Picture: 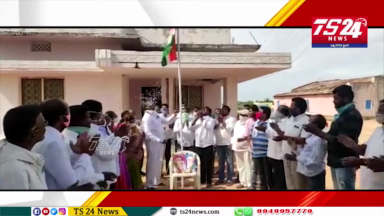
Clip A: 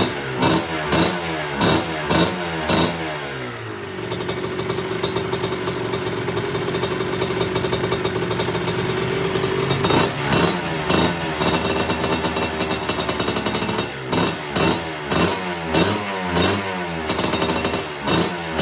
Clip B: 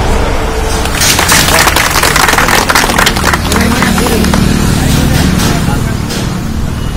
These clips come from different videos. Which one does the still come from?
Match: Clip B